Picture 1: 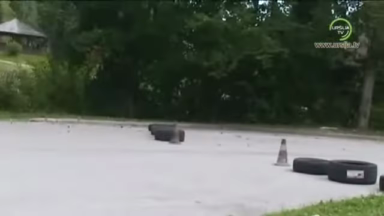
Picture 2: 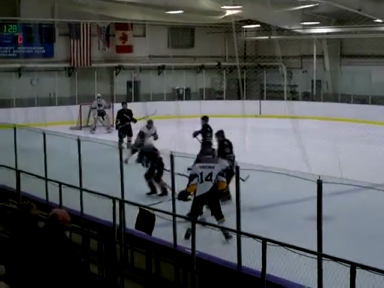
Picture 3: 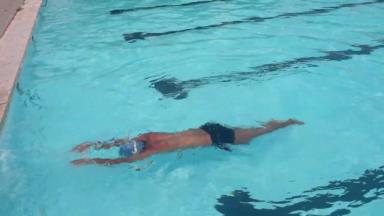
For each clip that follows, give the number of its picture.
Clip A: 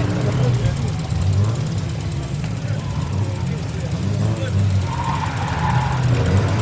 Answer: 1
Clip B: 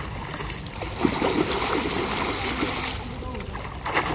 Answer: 3